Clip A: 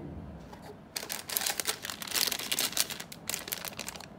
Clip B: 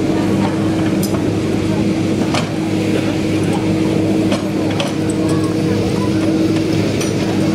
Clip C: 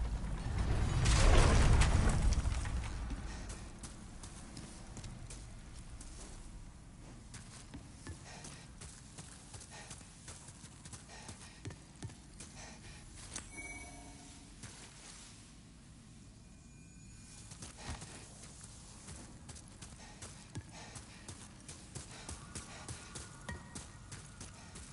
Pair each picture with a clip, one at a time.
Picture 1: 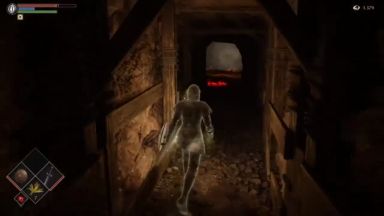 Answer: C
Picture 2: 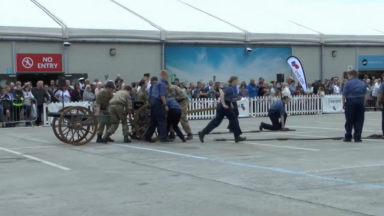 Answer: B